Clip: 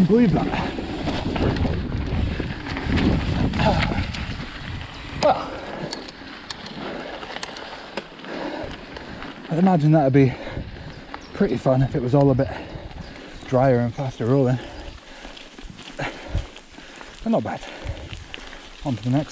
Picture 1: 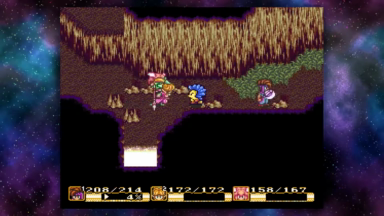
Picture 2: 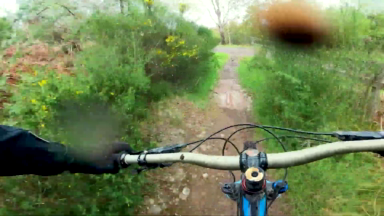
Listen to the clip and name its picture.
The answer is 2